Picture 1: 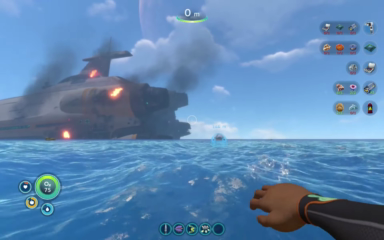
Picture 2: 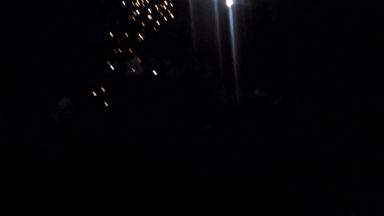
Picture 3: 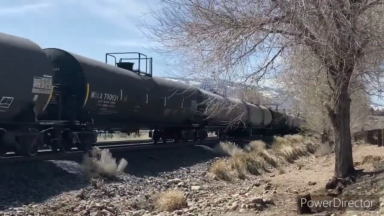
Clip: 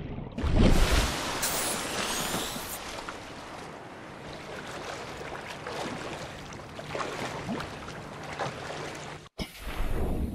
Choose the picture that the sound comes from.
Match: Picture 1